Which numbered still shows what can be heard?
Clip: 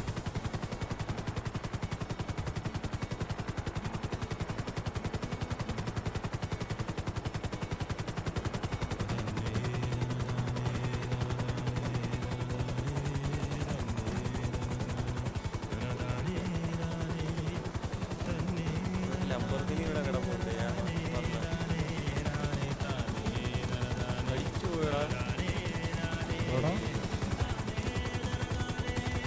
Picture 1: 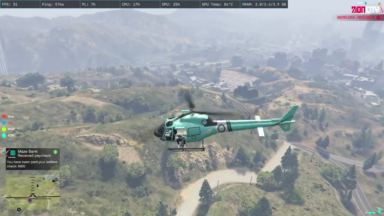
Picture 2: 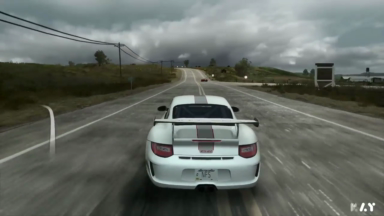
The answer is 1